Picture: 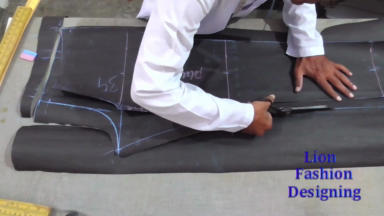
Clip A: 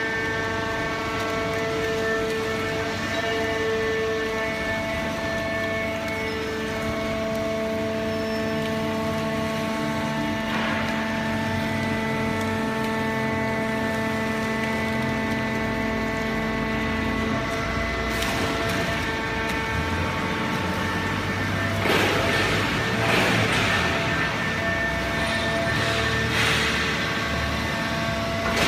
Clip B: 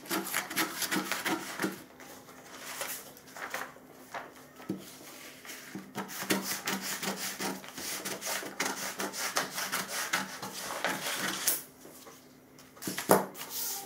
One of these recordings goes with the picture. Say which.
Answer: B